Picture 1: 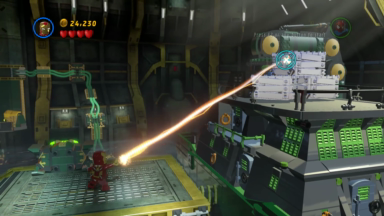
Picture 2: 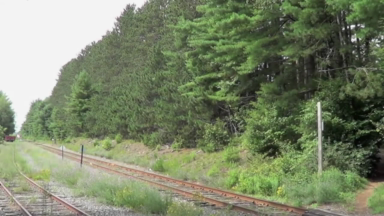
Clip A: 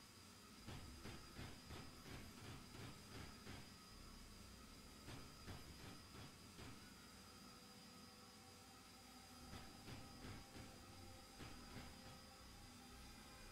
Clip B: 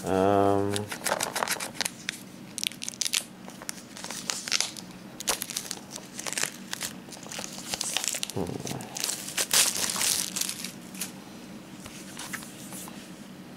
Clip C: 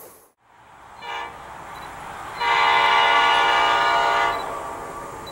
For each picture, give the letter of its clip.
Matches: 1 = A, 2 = C